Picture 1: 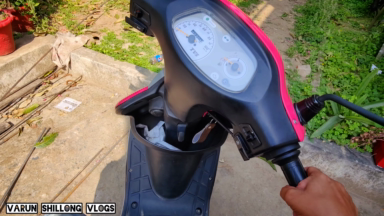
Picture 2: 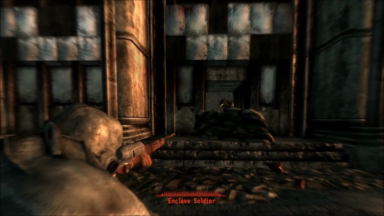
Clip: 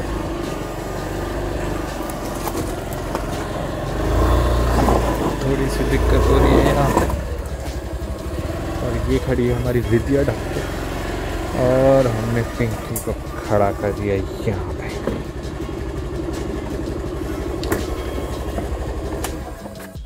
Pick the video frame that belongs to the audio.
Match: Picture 1